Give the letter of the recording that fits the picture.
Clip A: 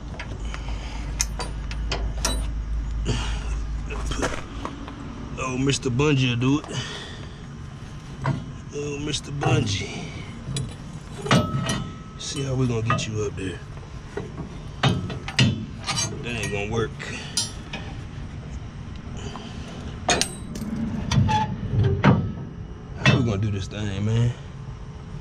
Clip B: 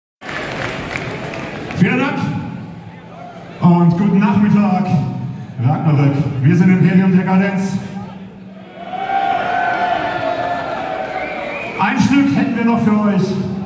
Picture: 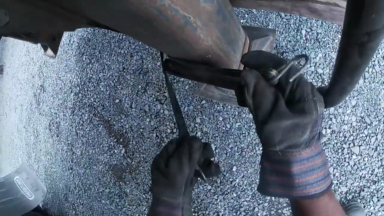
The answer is A